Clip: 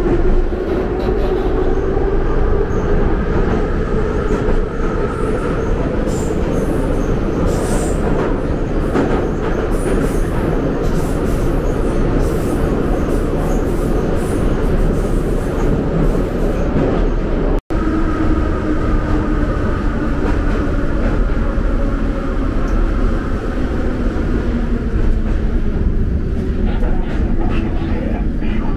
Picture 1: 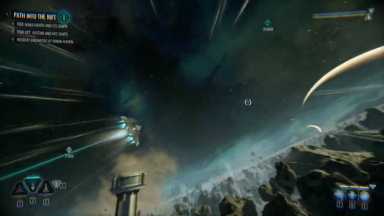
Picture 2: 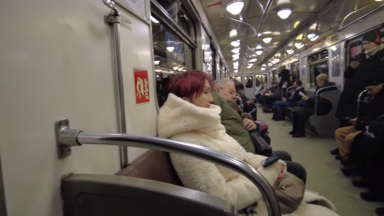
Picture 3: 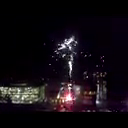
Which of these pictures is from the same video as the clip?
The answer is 2